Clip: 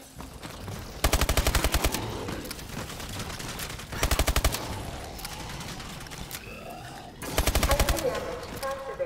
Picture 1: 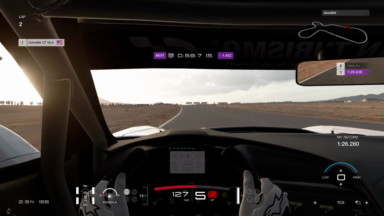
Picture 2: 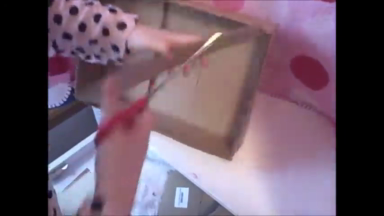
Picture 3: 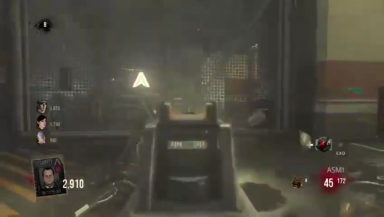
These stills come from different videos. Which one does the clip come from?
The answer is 3